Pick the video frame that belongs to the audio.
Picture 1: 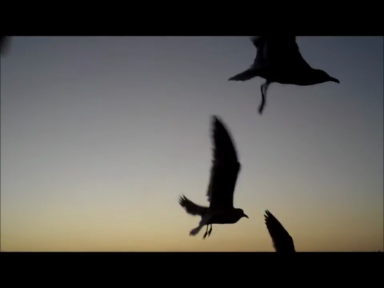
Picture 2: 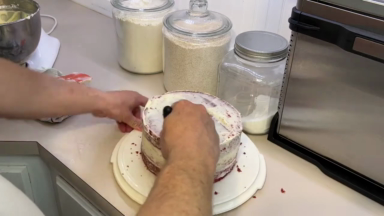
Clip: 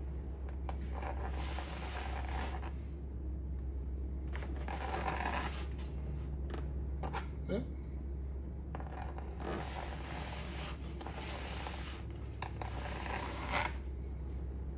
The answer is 2